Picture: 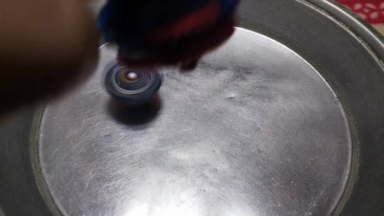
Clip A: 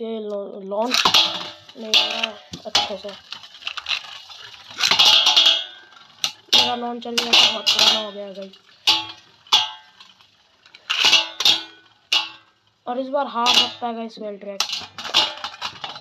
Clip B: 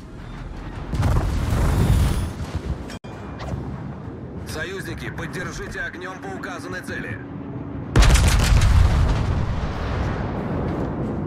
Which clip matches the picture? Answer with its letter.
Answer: A